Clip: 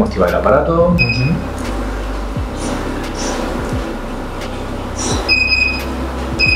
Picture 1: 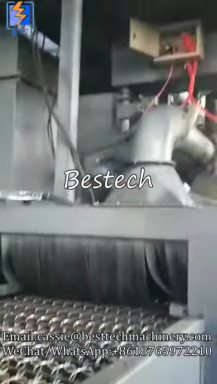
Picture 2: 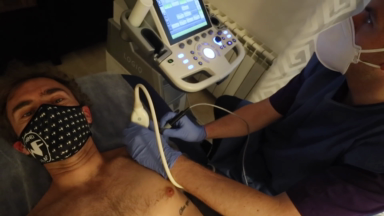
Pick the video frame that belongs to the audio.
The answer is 2